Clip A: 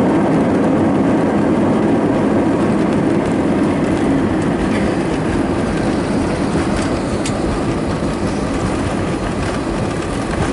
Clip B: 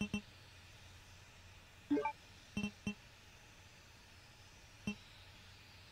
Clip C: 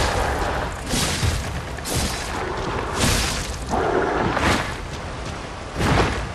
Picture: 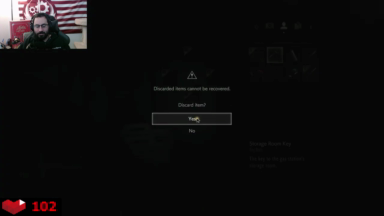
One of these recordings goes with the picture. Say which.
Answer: B